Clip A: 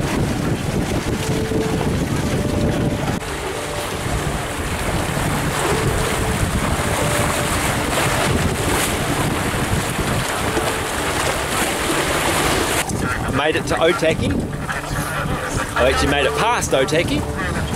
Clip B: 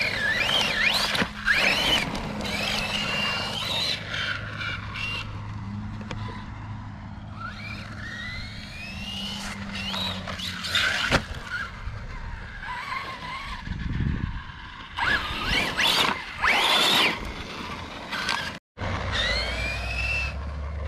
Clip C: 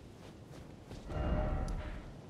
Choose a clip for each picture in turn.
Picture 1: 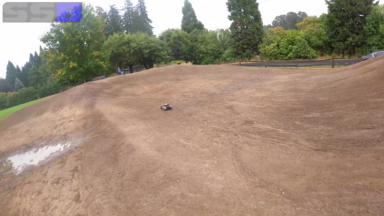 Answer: B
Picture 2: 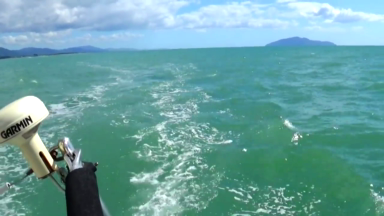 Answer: A